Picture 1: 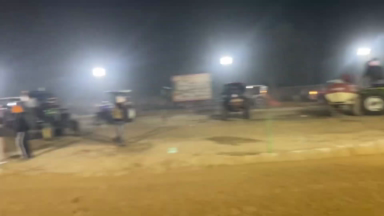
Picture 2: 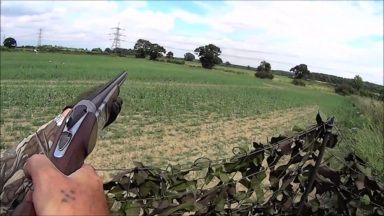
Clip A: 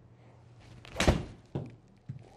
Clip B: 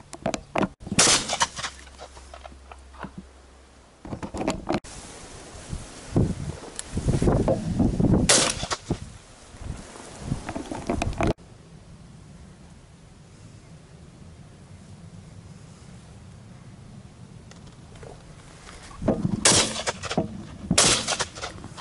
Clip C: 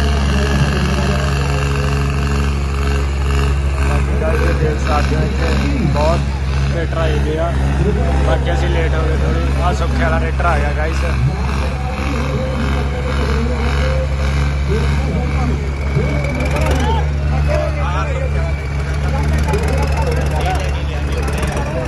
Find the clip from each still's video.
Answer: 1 C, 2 B